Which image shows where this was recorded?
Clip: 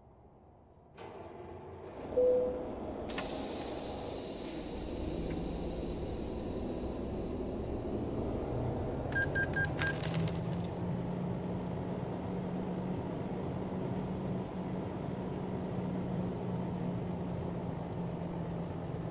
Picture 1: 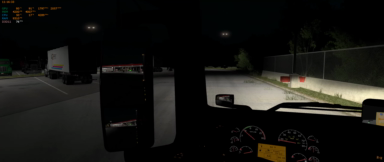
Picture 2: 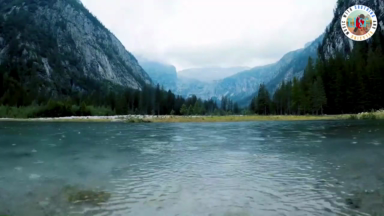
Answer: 1